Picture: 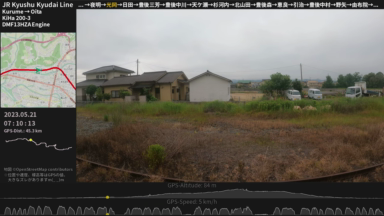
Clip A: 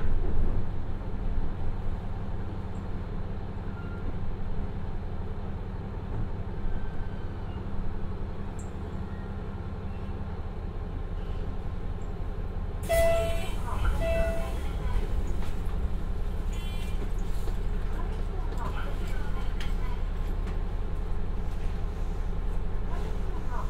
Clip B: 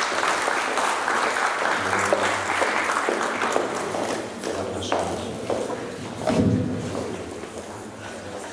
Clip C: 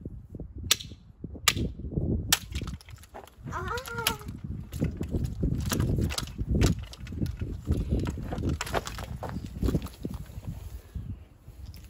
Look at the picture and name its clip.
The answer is A